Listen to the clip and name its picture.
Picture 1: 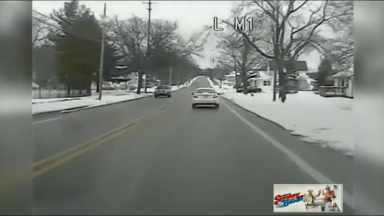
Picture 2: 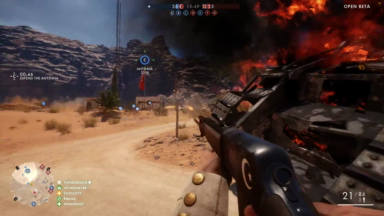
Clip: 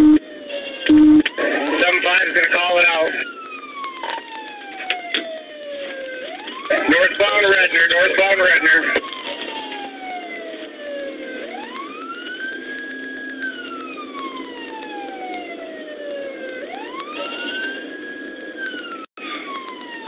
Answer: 1